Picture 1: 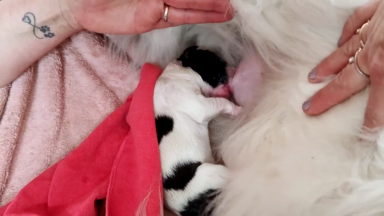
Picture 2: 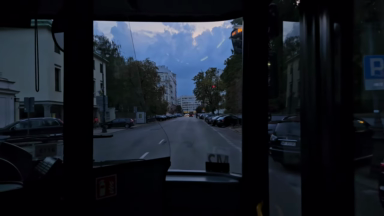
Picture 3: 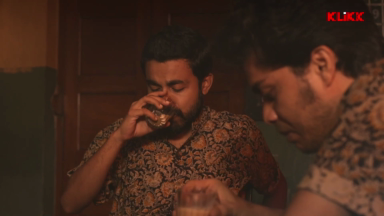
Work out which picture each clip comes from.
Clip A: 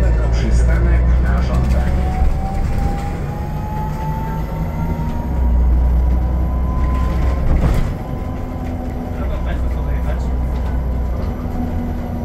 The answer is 2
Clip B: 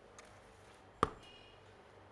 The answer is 3